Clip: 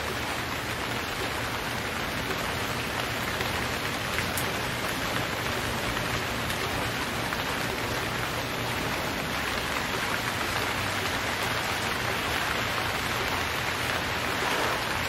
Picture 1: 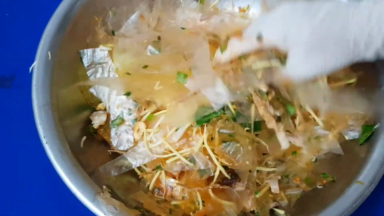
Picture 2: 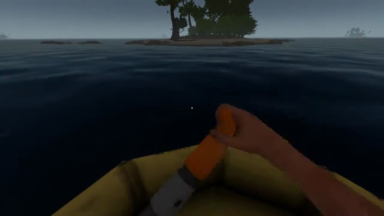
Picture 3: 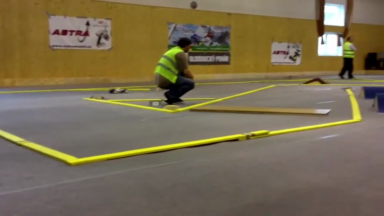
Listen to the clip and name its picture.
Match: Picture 2